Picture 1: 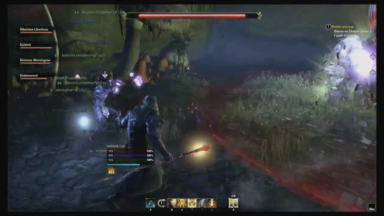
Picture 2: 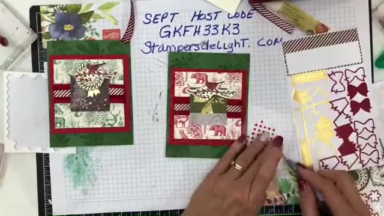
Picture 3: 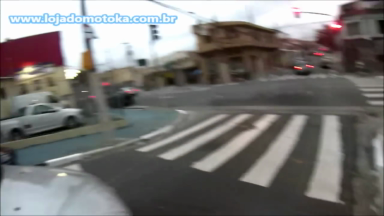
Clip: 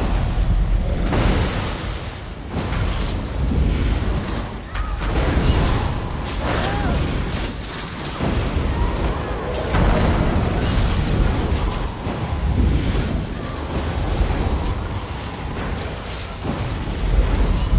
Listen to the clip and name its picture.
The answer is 1